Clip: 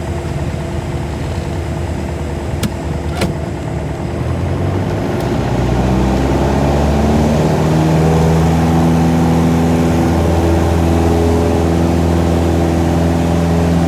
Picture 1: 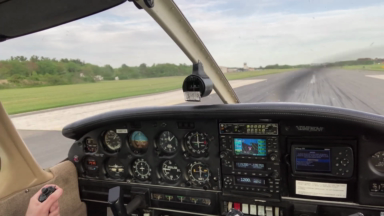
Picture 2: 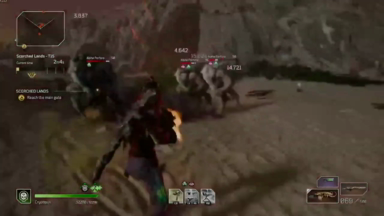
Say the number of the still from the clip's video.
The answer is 1